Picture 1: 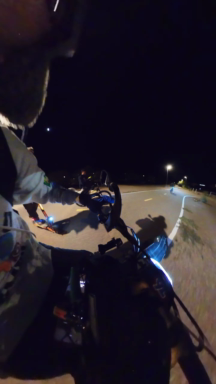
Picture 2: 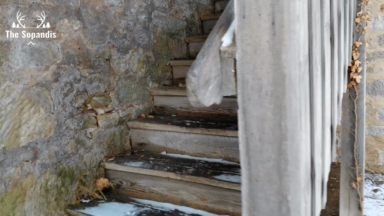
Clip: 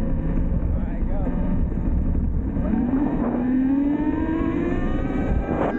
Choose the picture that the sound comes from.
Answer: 1